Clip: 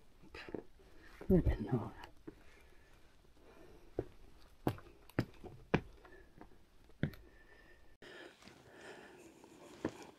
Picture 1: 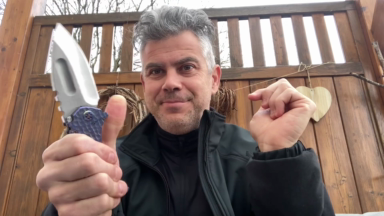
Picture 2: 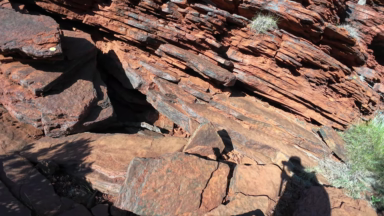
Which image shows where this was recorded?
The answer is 2